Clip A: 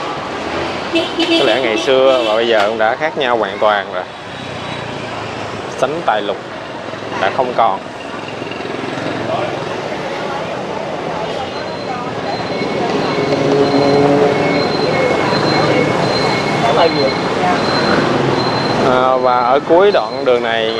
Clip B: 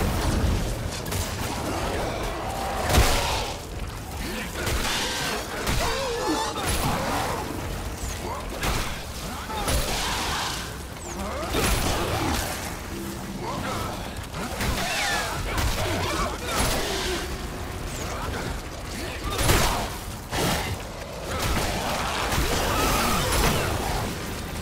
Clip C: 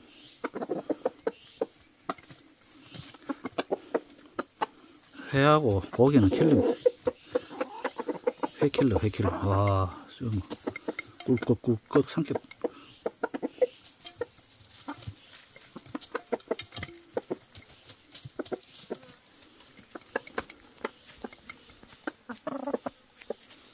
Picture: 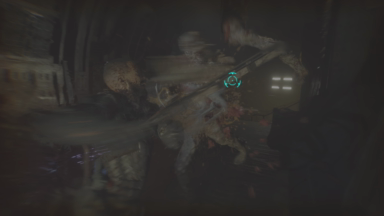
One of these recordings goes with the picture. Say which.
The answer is B